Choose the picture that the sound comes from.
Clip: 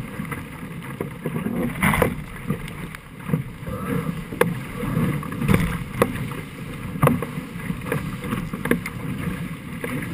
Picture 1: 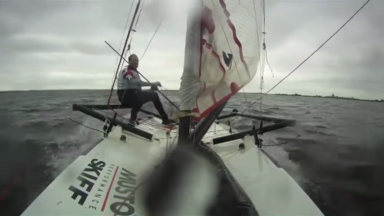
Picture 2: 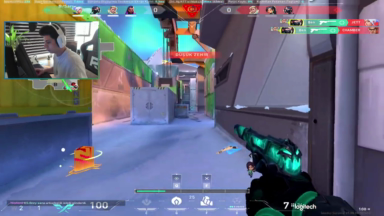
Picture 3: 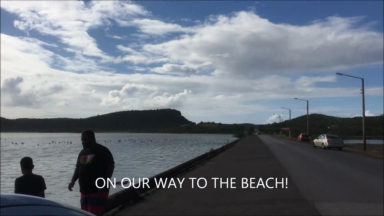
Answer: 1